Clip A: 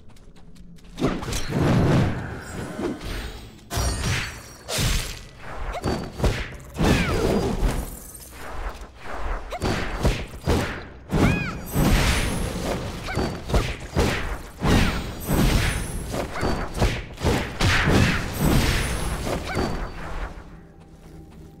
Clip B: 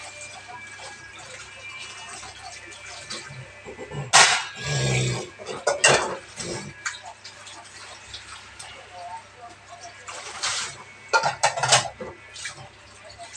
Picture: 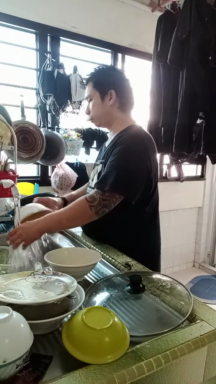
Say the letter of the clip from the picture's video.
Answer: B